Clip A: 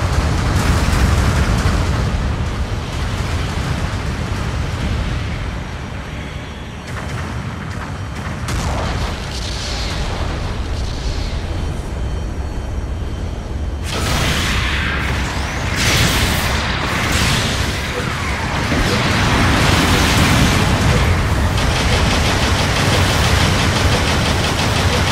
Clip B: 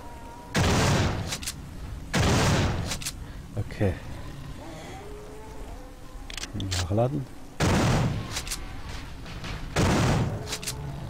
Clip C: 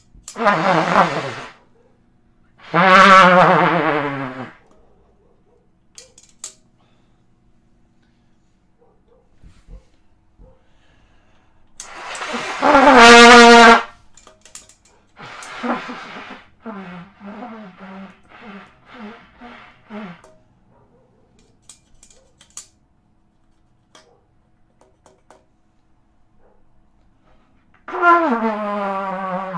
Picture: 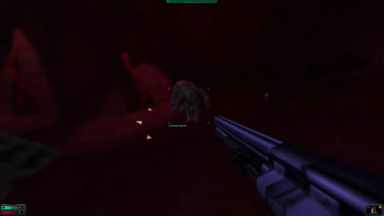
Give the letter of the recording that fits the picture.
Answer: B